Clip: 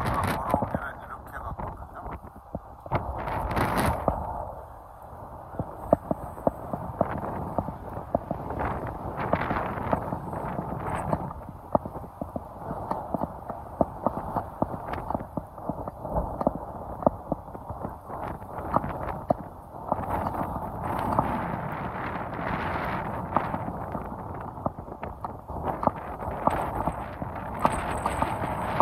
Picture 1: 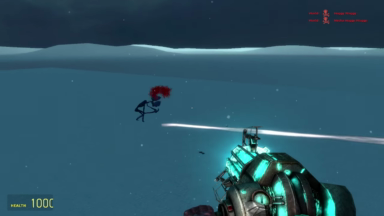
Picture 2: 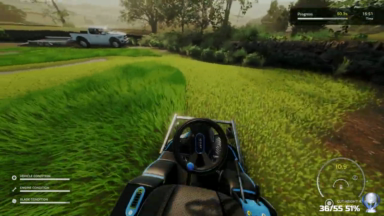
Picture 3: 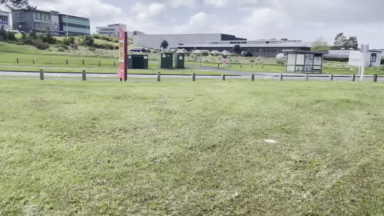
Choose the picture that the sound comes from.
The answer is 3